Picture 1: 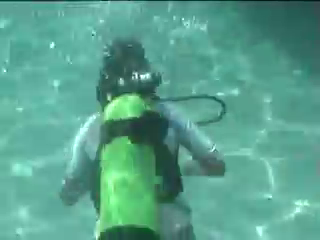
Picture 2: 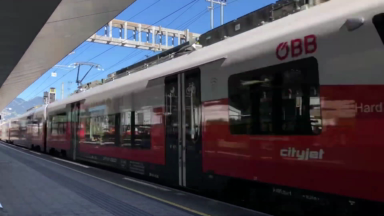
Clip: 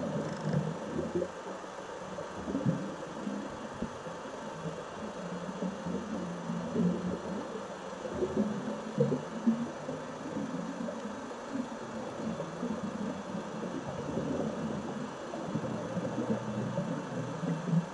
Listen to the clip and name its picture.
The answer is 1